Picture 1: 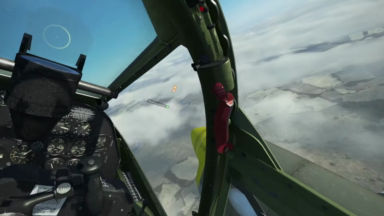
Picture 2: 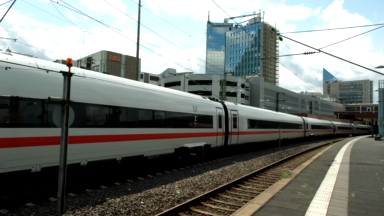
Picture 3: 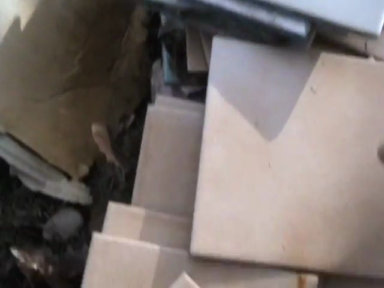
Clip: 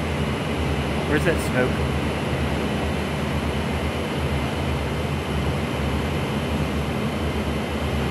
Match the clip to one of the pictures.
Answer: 1